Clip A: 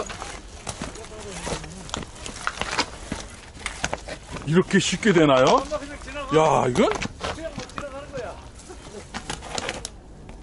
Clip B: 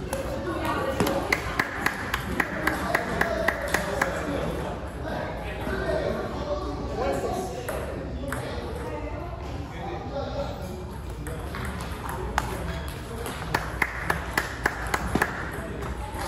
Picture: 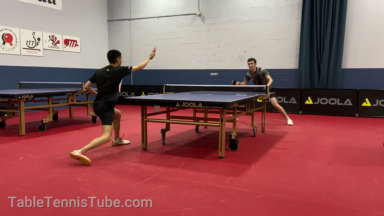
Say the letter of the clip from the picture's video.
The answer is B